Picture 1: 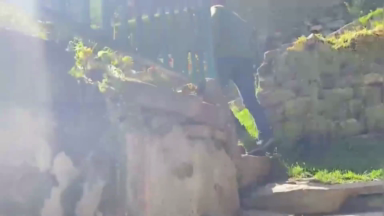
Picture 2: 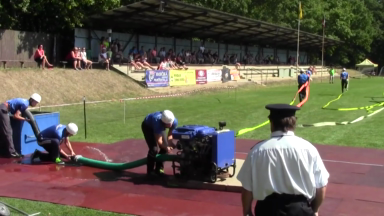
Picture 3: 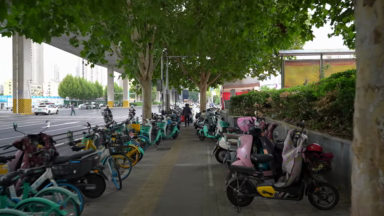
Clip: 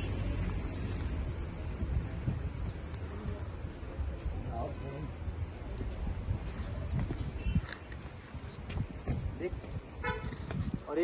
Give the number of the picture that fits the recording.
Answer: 1